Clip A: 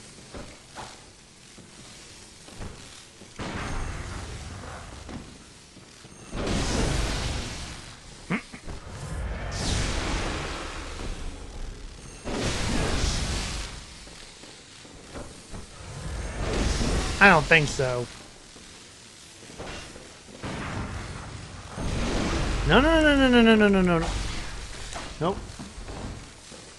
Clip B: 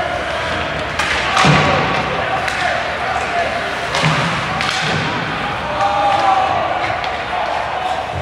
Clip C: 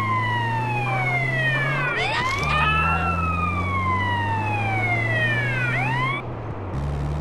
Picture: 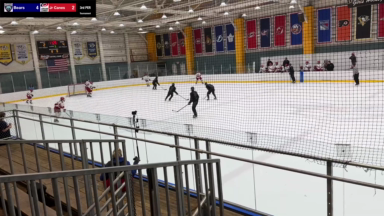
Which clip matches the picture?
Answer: B